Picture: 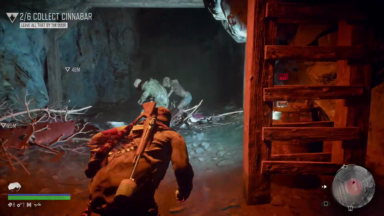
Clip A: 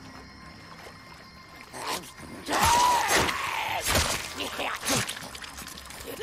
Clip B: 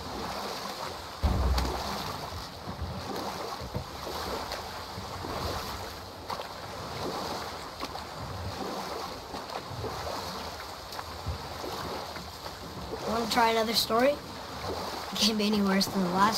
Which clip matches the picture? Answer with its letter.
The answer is A